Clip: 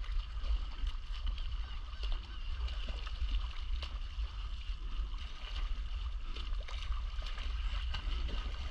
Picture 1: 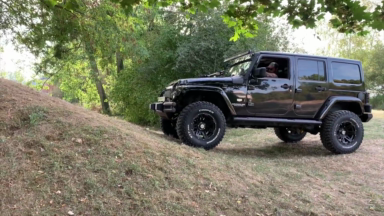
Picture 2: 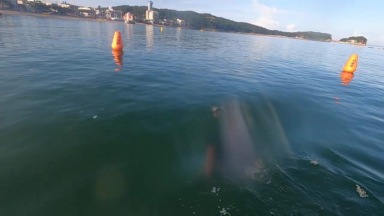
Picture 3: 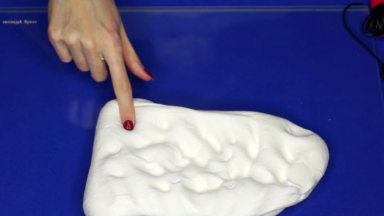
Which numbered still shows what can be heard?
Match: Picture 2